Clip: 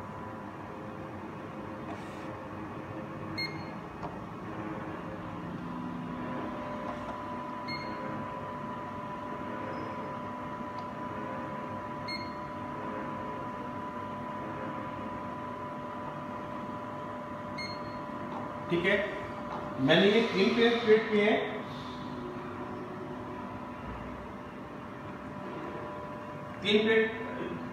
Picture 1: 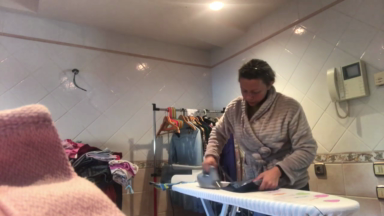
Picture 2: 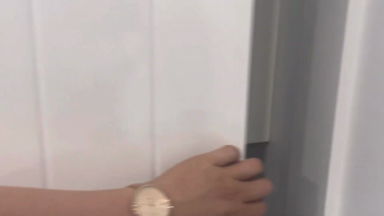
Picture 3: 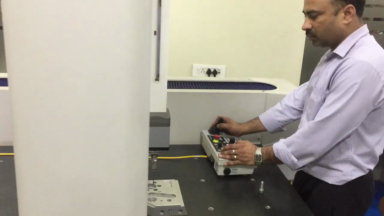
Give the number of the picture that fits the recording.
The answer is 3